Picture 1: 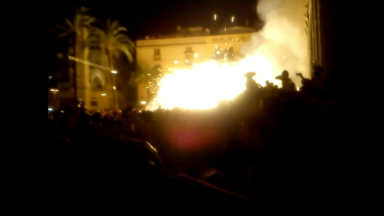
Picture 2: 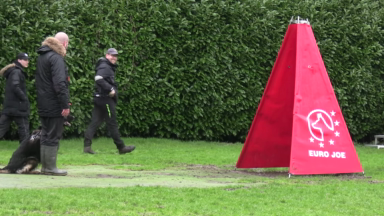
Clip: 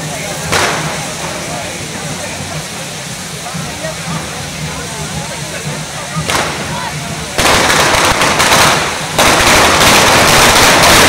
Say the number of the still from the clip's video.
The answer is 1